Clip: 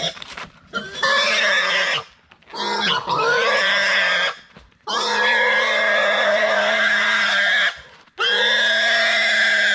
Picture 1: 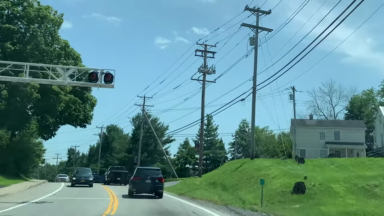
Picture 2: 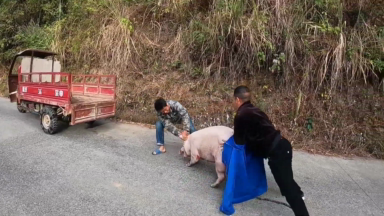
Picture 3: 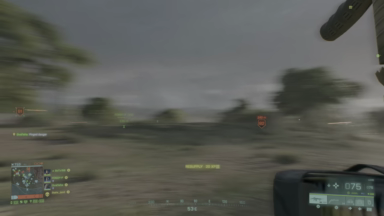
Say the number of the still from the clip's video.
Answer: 2